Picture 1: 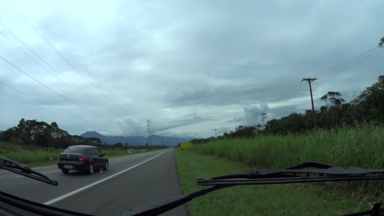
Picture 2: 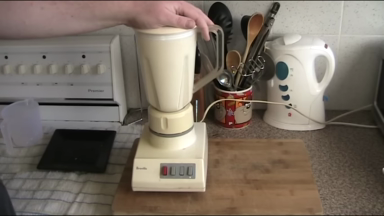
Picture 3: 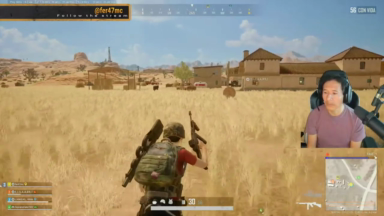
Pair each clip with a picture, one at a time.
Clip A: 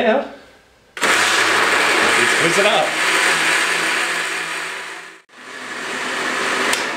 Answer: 2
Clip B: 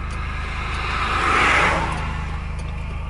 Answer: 1